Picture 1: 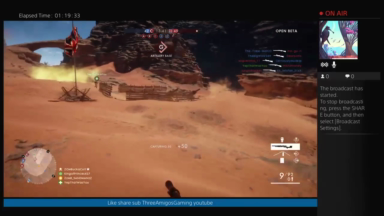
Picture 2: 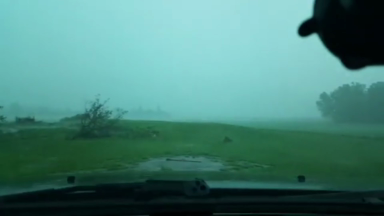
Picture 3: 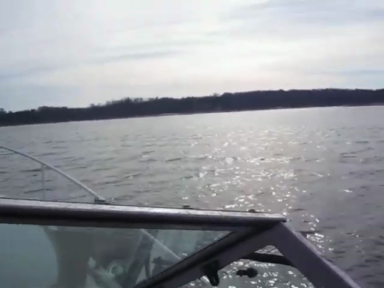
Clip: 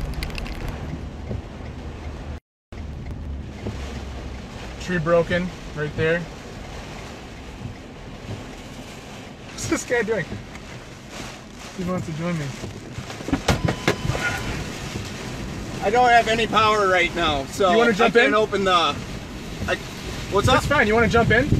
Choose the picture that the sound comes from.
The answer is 2